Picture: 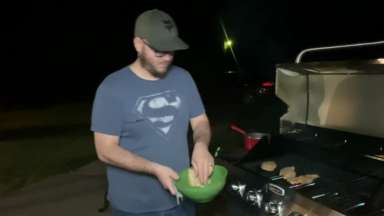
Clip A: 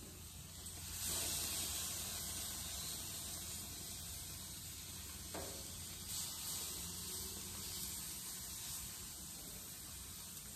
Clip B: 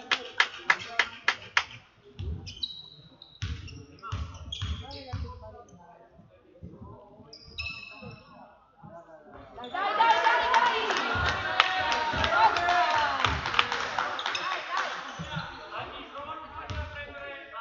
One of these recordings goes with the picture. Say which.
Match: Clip A